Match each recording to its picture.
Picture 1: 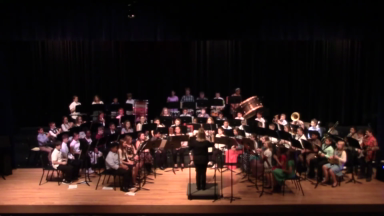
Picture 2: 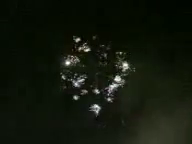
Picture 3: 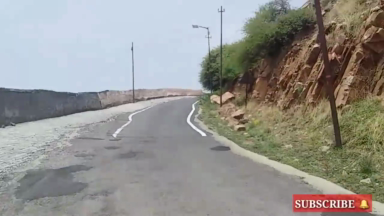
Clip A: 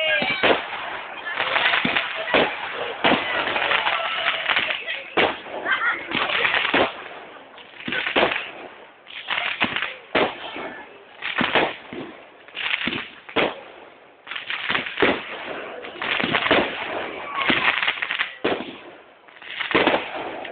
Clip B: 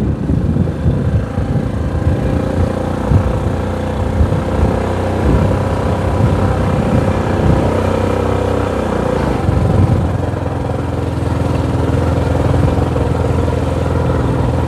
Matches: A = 2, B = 3